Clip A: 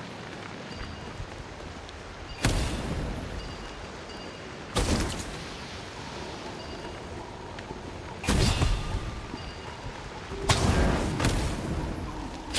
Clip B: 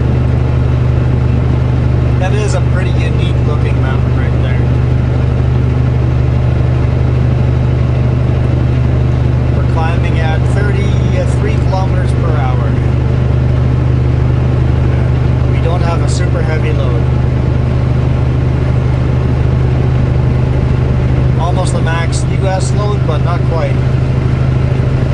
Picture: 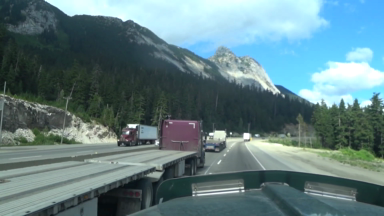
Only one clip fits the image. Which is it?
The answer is B